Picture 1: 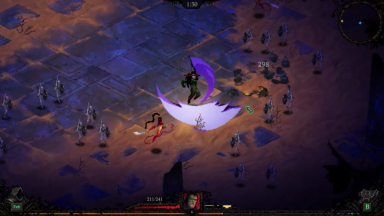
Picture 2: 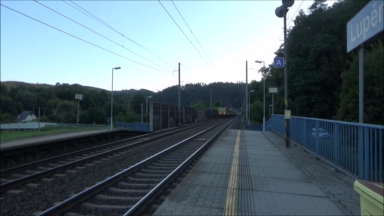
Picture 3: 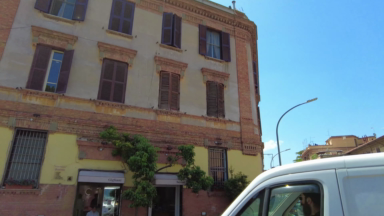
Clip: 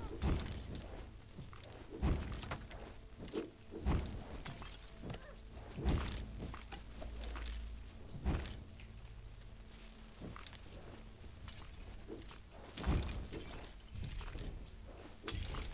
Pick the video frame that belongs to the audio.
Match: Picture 1